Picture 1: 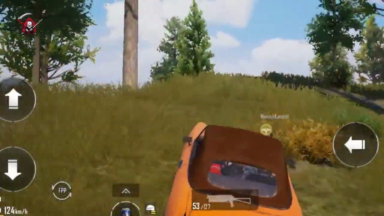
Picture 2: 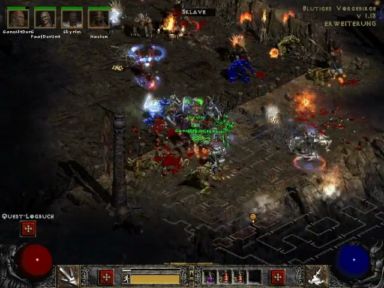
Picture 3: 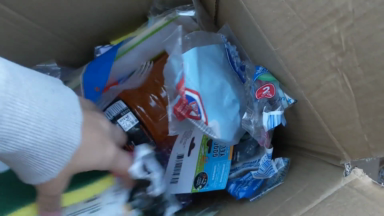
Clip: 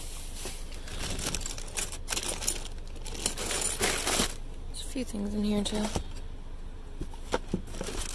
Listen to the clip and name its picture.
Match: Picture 3